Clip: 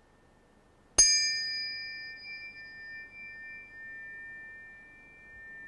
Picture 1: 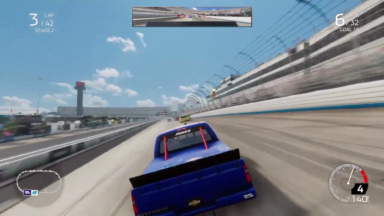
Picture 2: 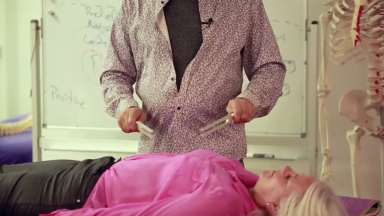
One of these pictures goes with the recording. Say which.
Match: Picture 2